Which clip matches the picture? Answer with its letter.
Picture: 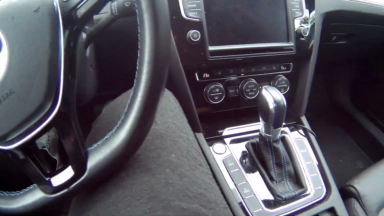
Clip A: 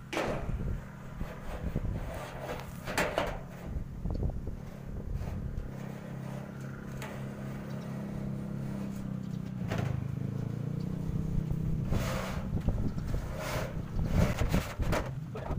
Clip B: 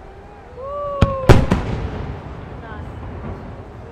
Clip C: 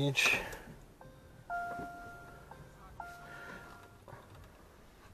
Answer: C